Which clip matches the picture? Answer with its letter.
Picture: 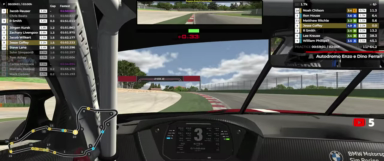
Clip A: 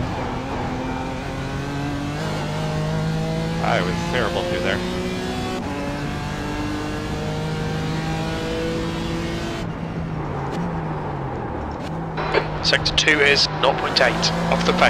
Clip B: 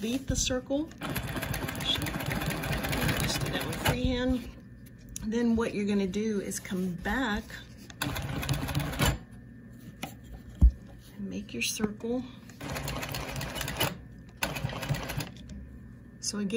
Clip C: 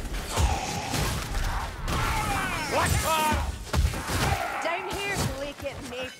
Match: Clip A